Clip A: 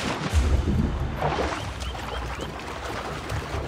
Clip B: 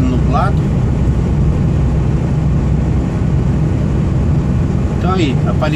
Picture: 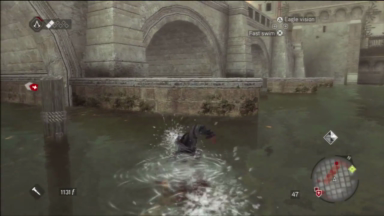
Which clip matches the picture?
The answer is A